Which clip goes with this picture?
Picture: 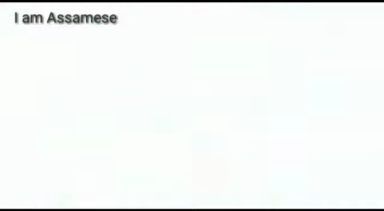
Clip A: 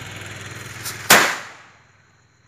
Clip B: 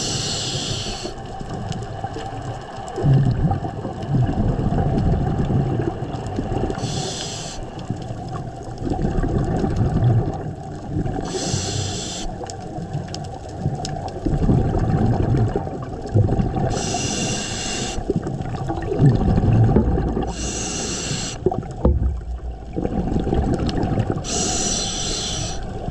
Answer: A